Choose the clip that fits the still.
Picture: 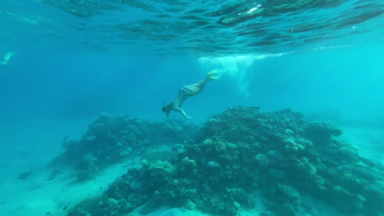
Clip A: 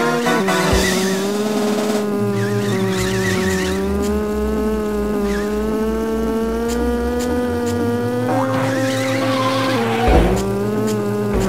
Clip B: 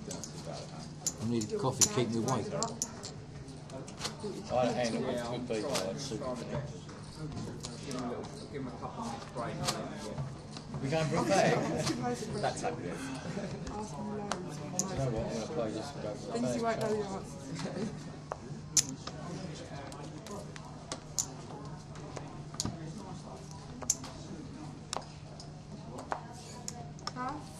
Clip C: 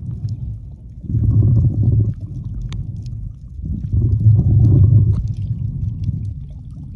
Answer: C